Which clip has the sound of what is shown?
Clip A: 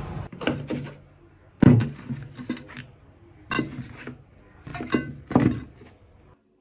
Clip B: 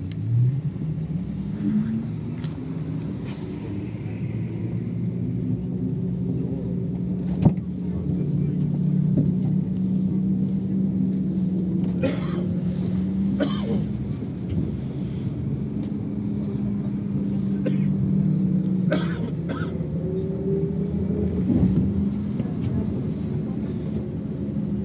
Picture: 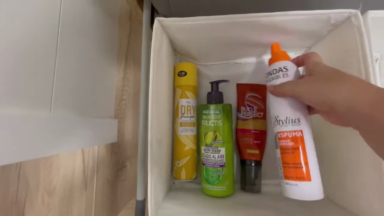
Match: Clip A